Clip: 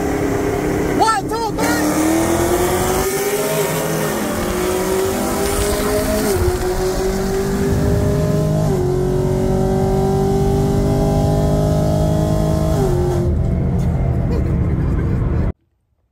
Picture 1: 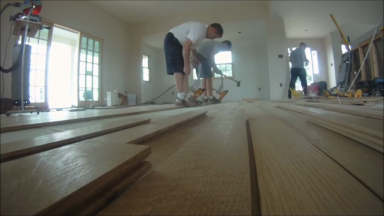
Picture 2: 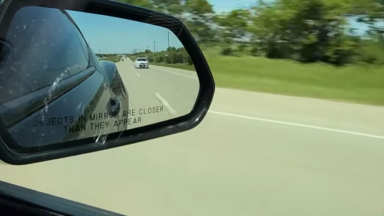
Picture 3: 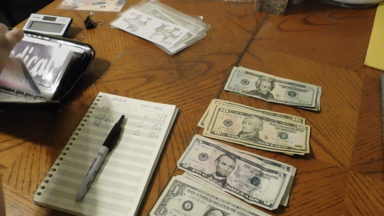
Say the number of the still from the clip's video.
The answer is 2